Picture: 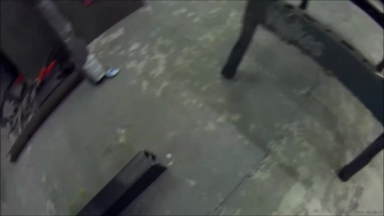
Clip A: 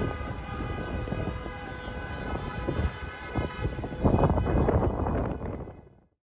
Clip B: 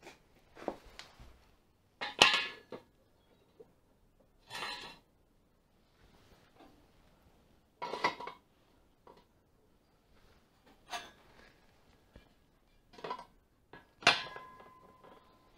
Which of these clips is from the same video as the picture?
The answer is B